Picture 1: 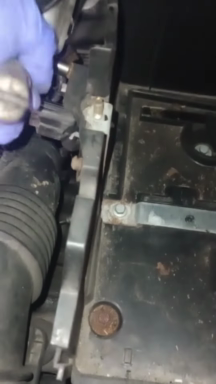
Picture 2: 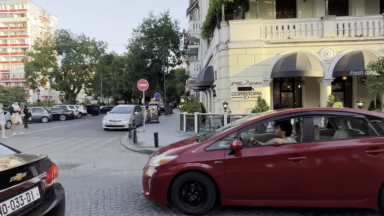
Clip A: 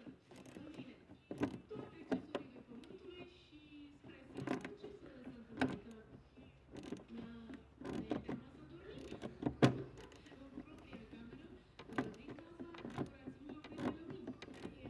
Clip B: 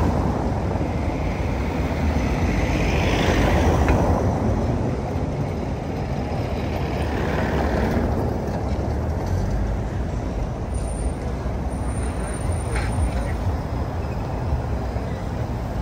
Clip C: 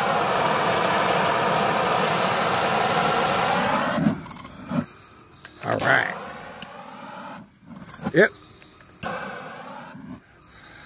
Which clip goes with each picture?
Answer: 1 A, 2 B